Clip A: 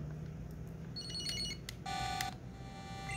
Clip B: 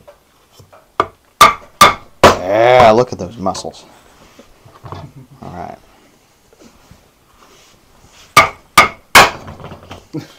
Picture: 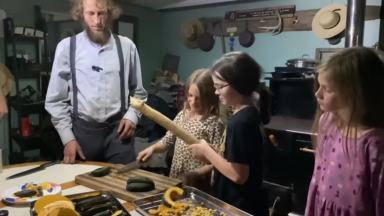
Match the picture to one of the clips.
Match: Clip B